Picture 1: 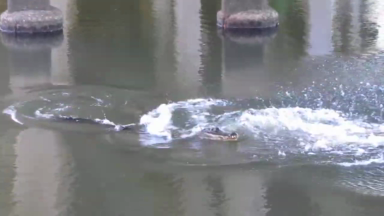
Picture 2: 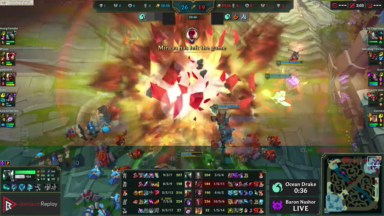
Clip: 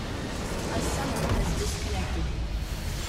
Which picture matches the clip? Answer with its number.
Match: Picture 2